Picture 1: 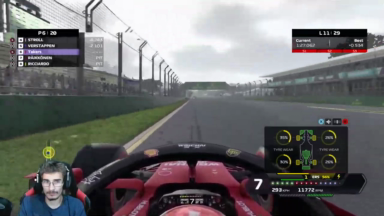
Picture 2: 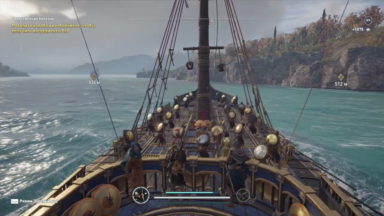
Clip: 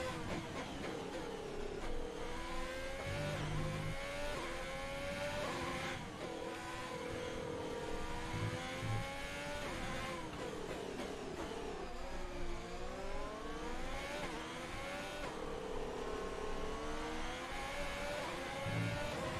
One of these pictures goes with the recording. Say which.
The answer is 1